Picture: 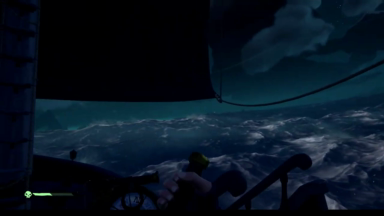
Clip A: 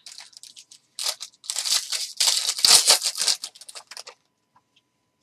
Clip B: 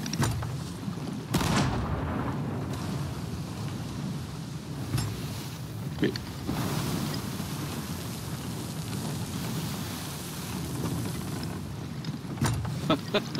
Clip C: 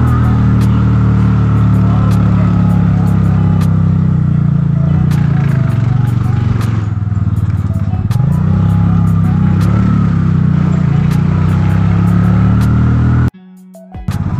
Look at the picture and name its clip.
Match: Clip B